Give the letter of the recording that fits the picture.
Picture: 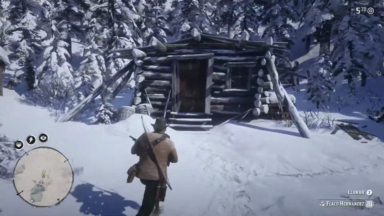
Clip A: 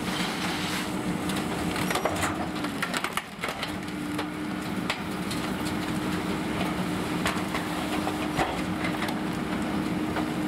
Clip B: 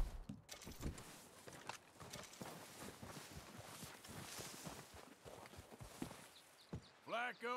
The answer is B